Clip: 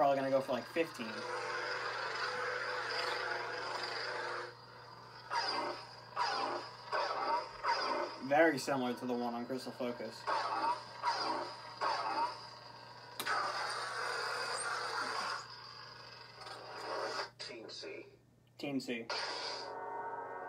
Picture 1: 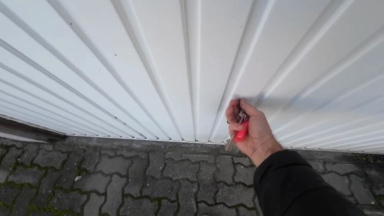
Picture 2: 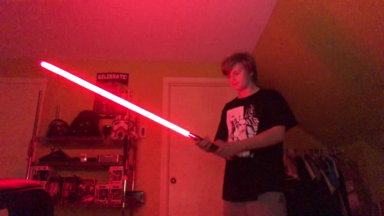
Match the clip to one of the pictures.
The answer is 2